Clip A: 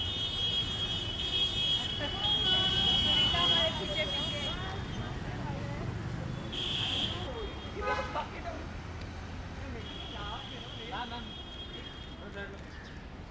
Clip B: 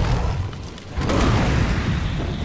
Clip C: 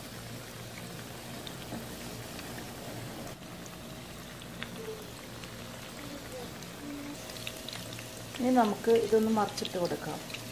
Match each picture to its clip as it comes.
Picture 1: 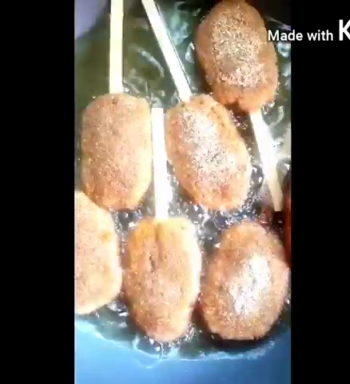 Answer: C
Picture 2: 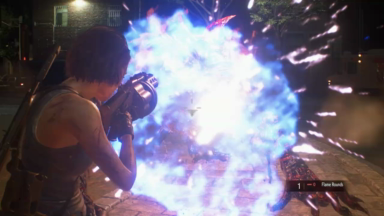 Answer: B